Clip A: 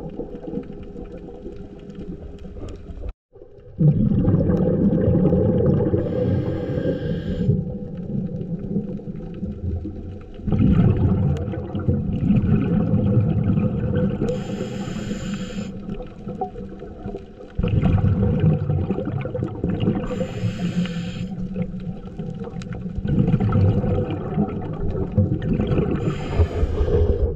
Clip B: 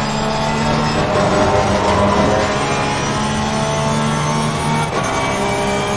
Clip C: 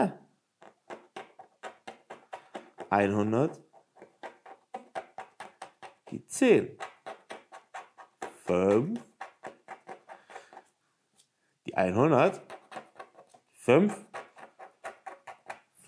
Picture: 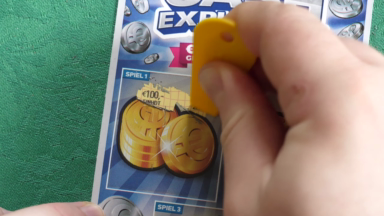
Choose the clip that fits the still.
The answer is C